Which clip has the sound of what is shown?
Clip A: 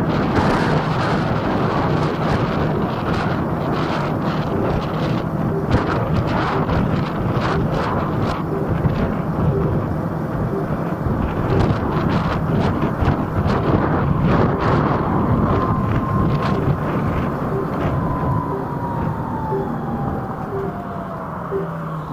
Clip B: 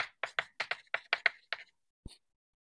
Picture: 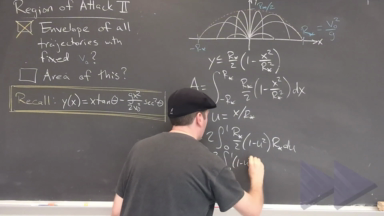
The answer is B